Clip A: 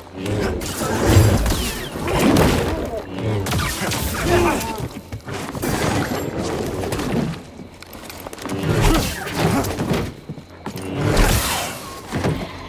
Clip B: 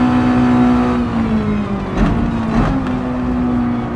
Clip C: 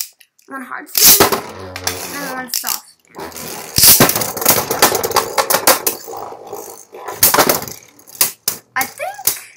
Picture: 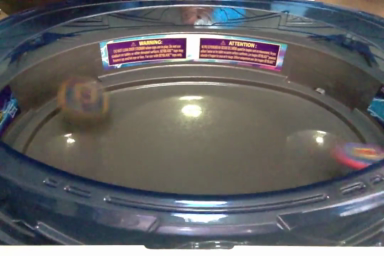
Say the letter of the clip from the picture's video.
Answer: C